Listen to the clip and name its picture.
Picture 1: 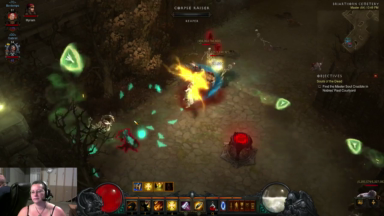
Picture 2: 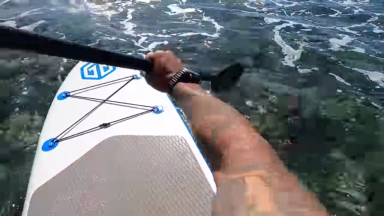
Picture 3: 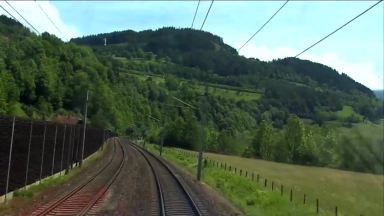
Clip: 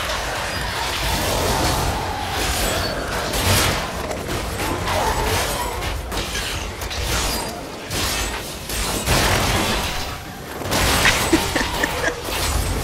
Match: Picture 1